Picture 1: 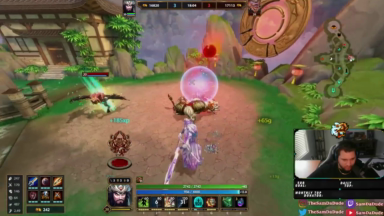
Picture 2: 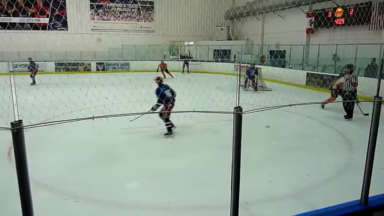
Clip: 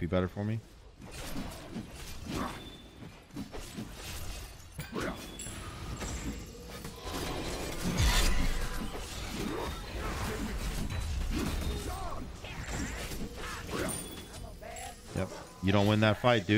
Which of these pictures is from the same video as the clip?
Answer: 1